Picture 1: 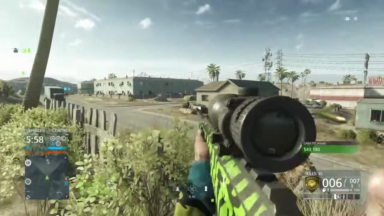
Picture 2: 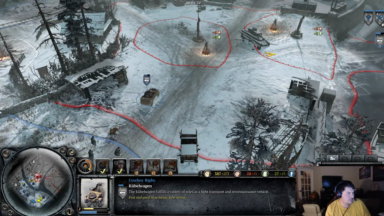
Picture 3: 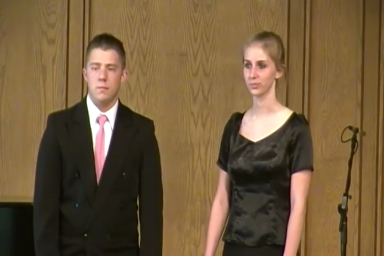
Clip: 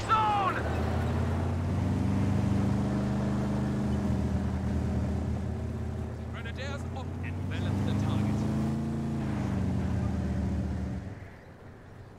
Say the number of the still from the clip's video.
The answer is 2